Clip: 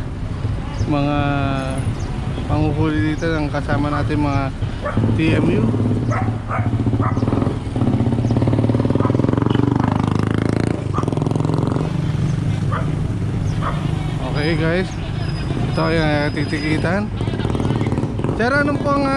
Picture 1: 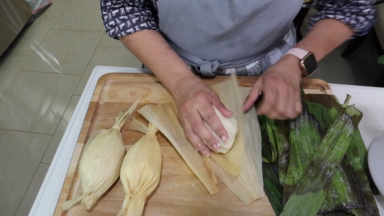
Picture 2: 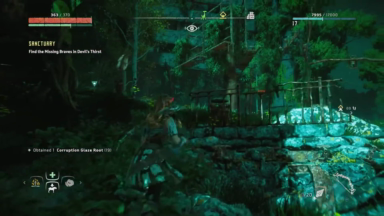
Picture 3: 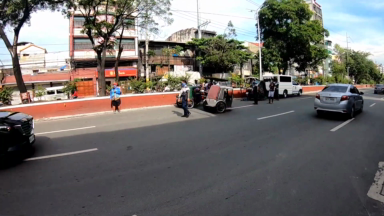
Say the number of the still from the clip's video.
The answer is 3